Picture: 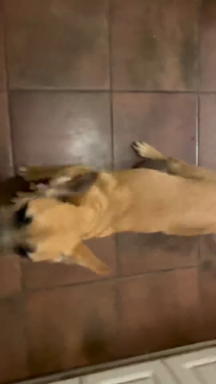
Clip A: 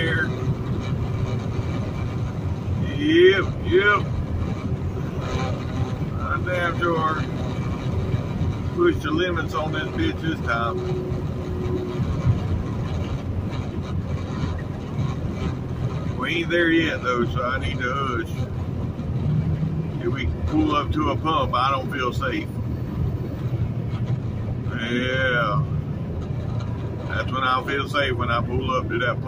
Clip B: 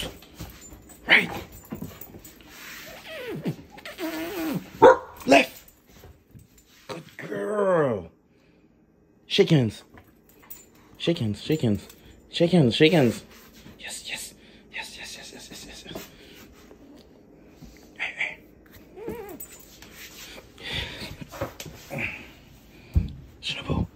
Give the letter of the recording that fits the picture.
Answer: B